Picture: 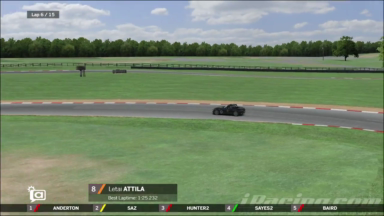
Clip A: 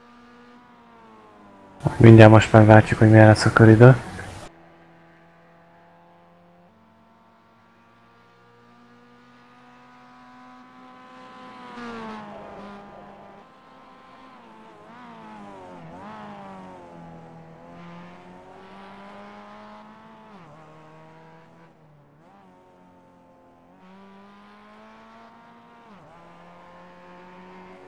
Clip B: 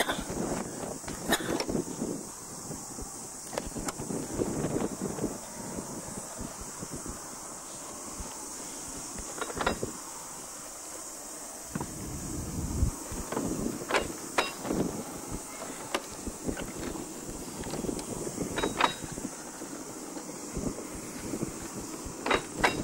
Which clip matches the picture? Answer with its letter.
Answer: A